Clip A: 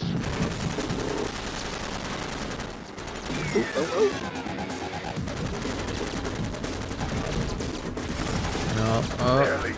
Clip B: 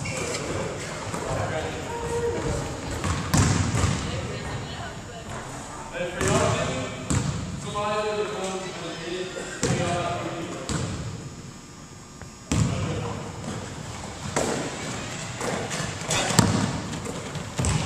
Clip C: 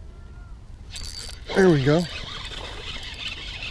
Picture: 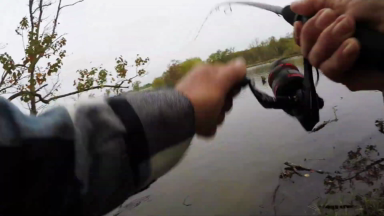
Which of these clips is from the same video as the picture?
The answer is C